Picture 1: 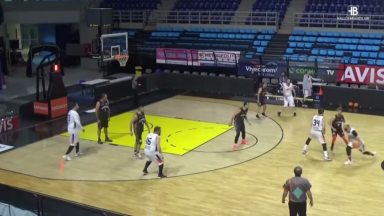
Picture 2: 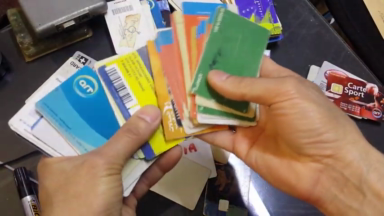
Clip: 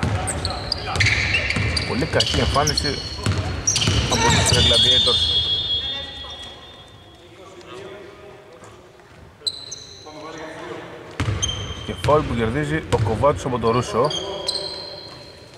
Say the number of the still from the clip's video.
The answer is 1